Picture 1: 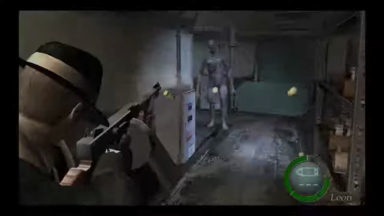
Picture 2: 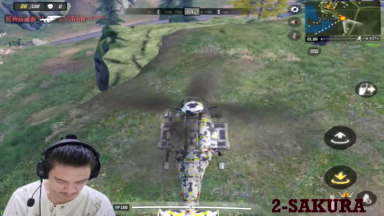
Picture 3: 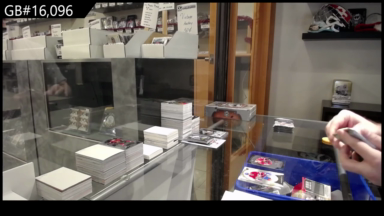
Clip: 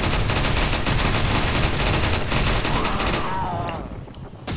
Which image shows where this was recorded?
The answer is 1